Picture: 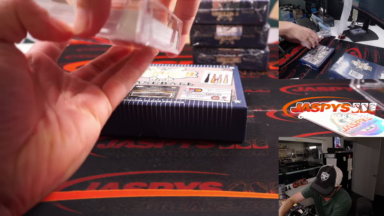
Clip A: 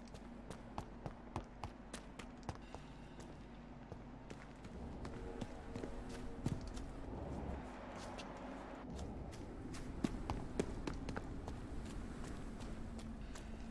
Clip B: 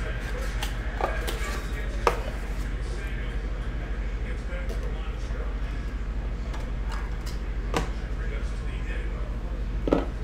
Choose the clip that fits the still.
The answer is B